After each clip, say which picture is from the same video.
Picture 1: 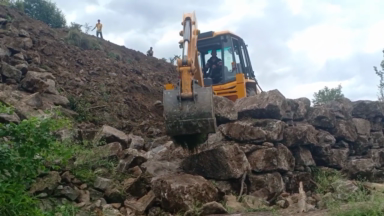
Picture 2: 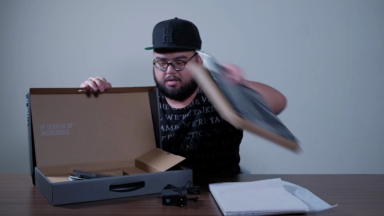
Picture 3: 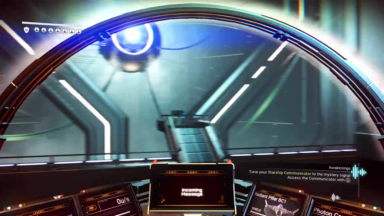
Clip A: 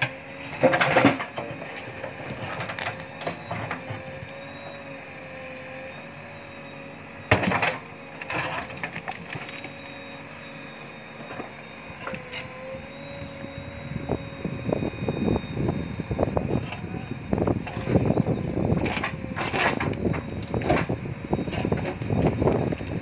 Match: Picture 1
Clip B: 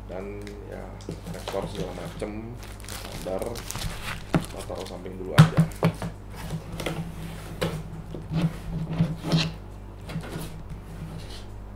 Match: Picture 2